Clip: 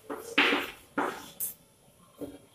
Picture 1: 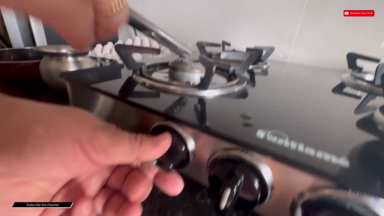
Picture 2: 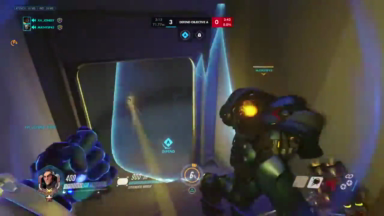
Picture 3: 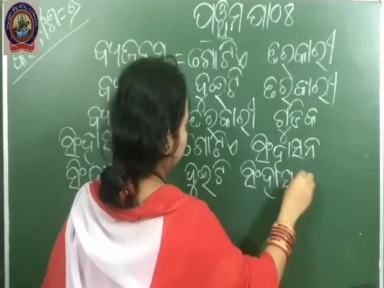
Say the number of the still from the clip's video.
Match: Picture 3